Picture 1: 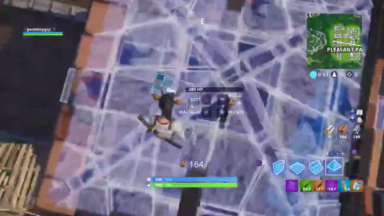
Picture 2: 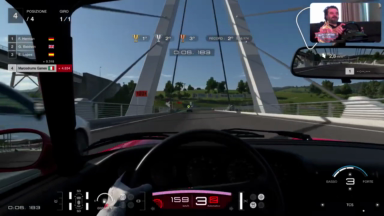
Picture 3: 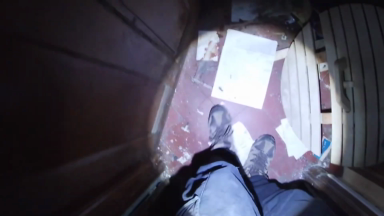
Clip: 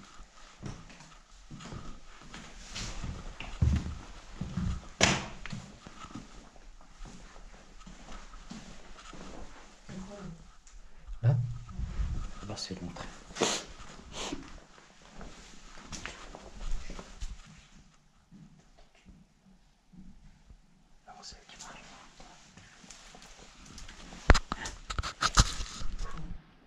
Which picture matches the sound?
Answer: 3